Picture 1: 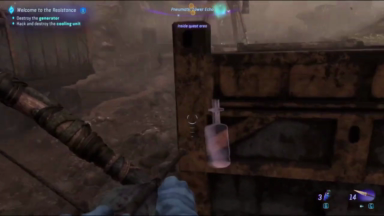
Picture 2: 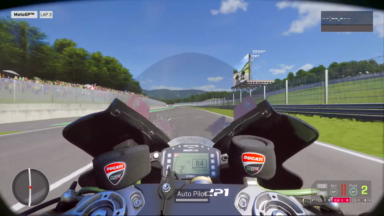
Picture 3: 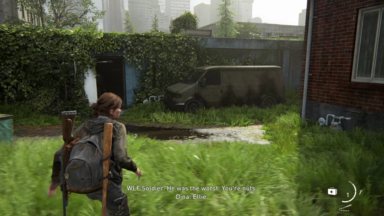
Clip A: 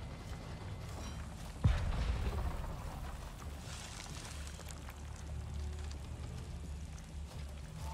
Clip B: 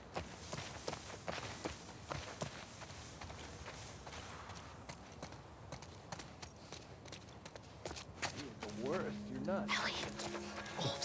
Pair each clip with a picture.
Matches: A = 1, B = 3